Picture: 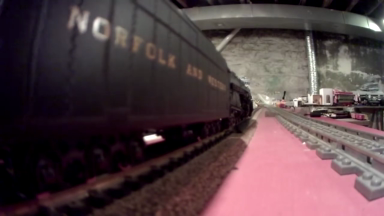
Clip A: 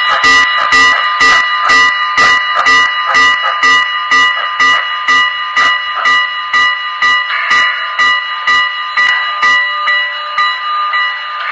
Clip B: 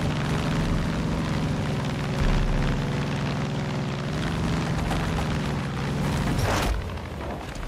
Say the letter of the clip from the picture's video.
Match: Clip A